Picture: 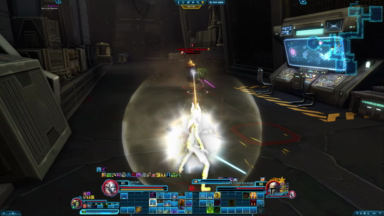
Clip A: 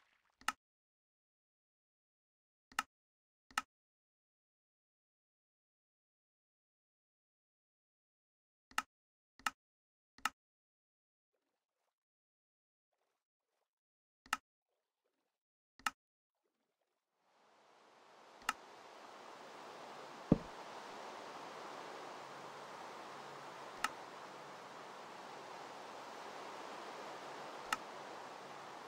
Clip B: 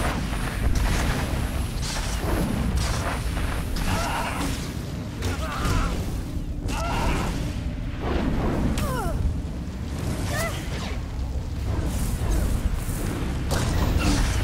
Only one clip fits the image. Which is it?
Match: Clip B